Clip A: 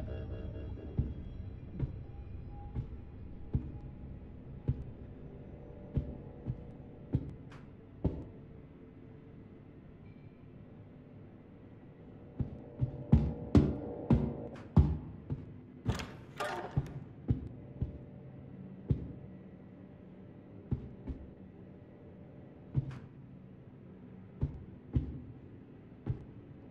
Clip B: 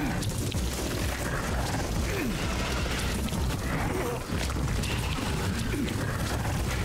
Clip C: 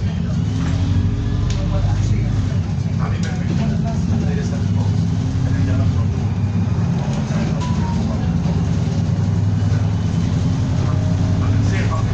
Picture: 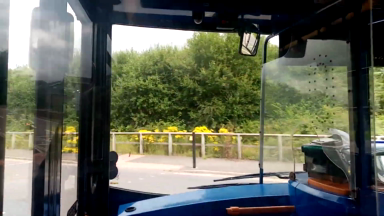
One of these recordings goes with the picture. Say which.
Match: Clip C